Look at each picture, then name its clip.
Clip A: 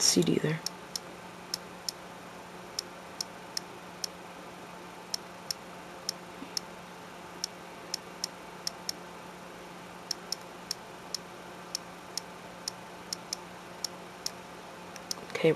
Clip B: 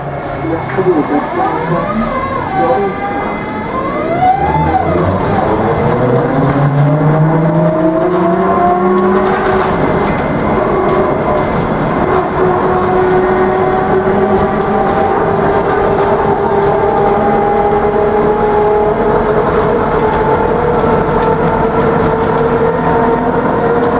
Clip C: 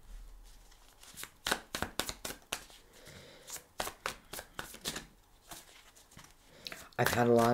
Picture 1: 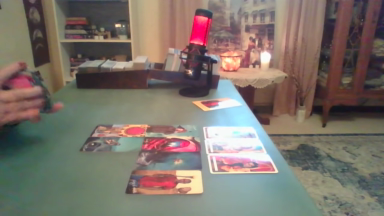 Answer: C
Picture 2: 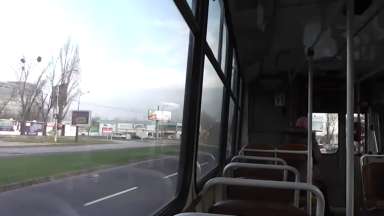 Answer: B